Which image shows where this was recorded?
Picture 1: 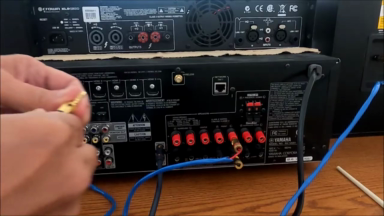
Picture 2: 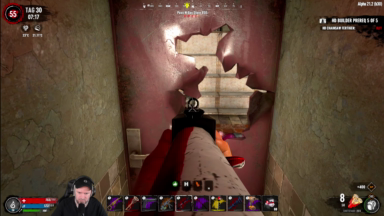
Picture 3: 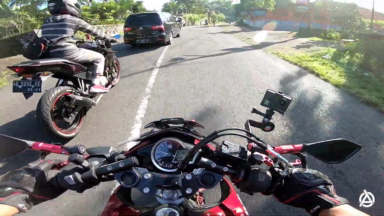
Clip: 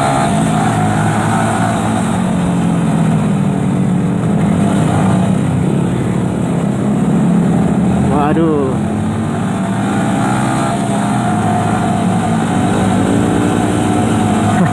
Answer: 3